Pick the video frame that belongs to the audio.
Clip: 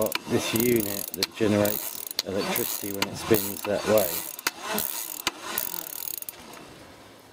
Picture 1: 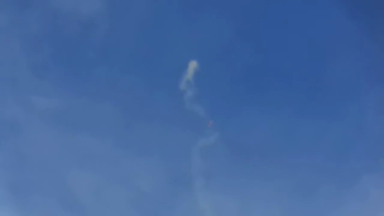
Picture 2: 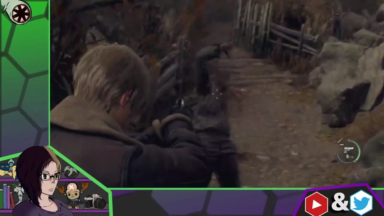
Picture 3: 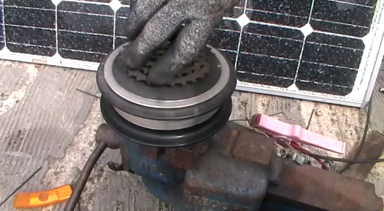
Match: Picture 3